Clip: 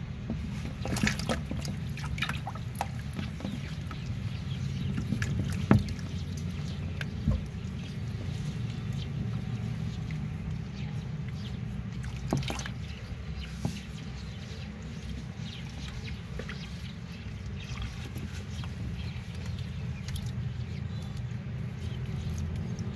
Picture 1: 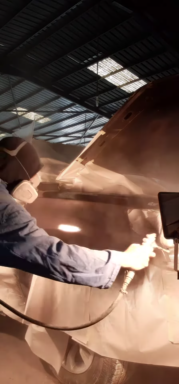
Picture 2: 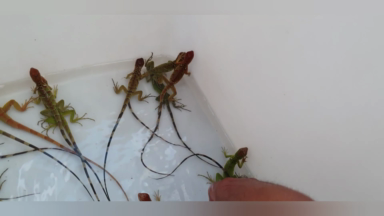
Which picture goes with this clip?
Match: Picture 2